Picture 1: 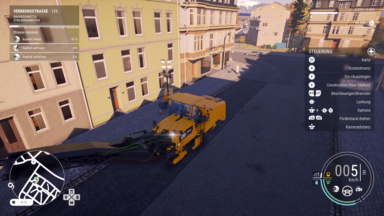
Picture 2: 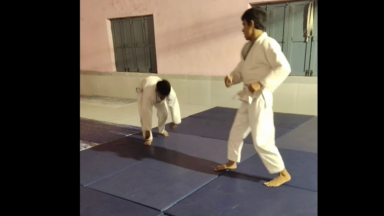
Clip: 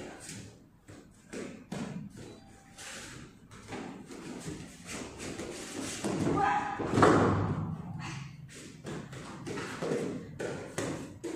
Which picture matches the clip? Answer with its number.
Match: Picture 2